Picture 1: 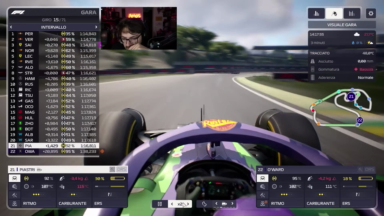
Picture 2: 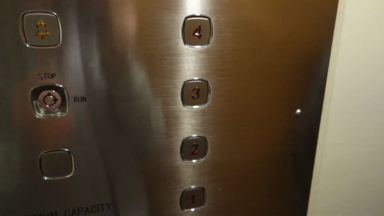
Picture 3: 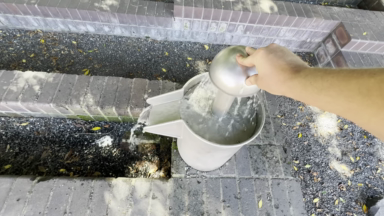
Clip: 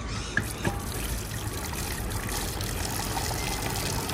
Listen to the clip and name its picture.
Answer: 3